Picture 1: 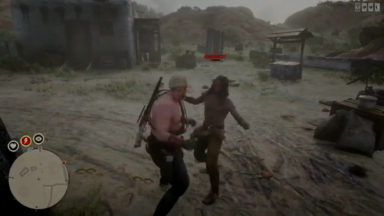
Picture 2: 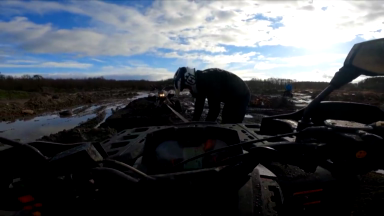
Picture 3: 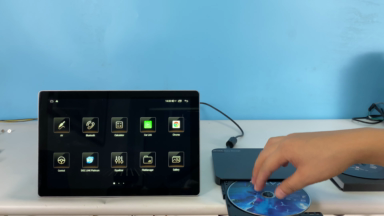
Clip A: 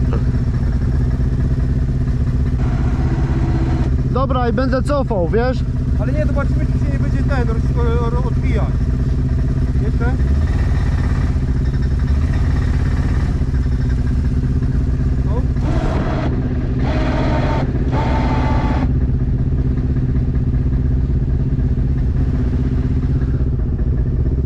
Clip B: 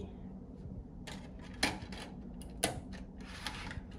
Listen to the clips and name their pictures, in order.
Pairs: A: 2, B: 3